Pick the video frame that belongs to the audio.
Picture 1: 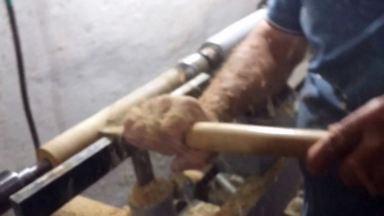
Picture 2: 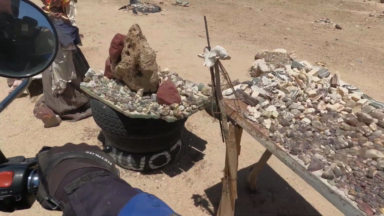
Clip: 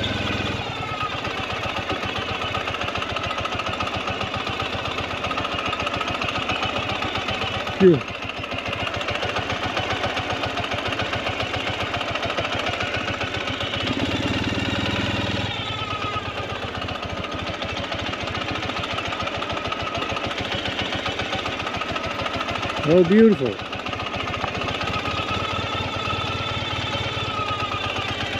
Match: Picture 2